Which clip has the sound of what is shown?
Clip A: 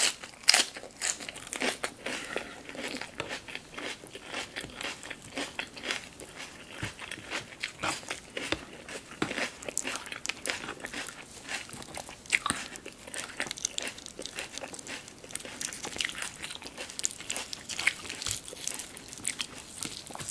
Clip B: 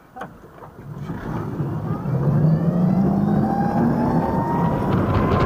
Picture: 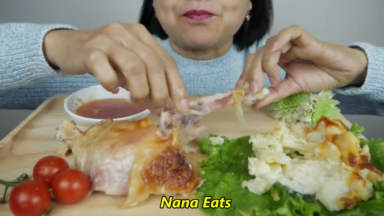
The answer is A